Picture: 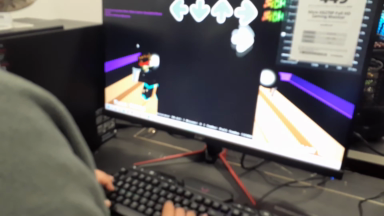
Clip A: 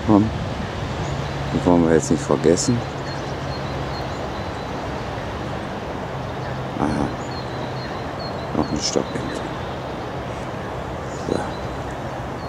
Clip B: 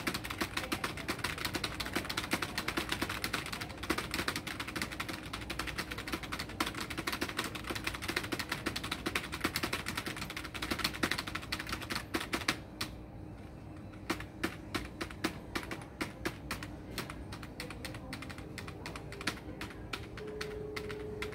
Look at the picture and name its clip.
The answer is B